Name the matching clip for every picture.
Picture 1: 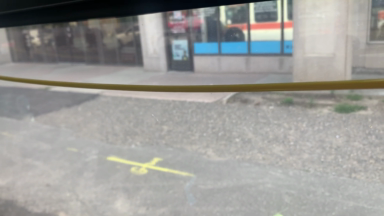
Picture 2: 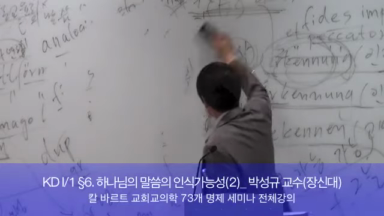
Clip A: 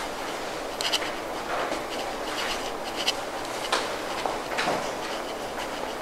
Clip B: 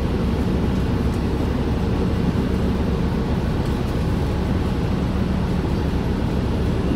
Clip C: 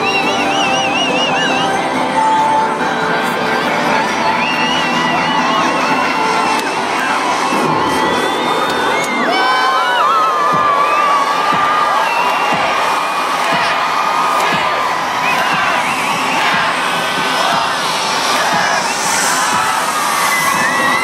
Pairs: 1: B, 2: A